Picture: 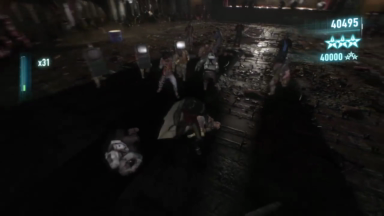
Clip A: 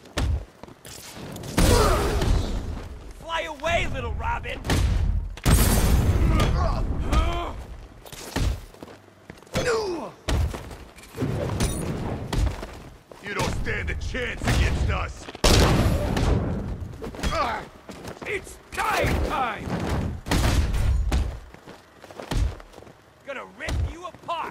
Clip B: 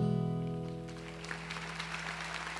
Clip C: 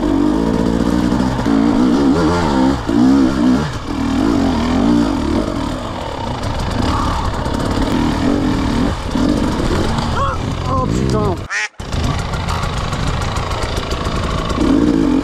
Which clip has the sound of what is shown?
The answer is A